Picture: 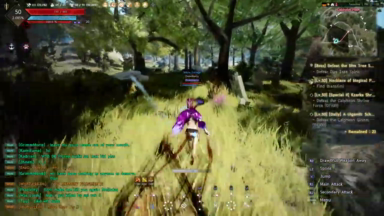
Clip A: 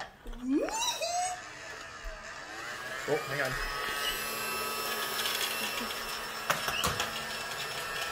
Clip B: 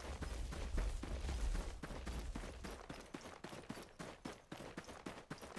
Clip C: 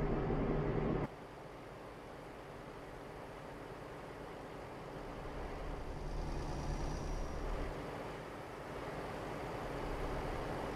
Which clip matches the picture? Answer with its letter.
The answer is B